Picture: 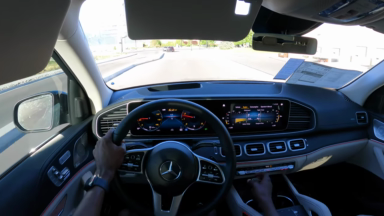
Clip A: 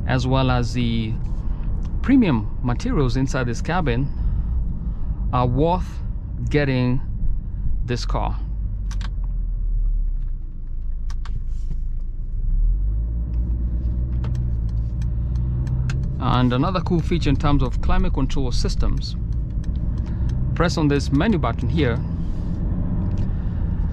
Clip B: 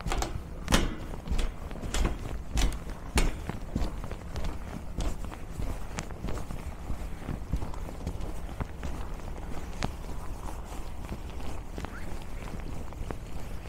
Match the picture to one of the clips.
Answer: A